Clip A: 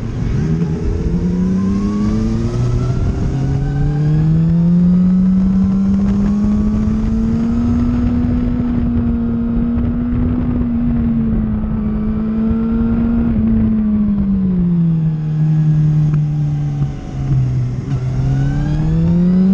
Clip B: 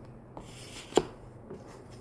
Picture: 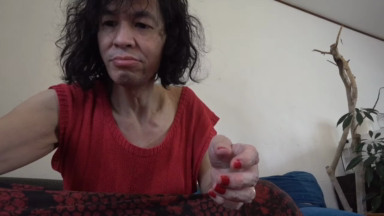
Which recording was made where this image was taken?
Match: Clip B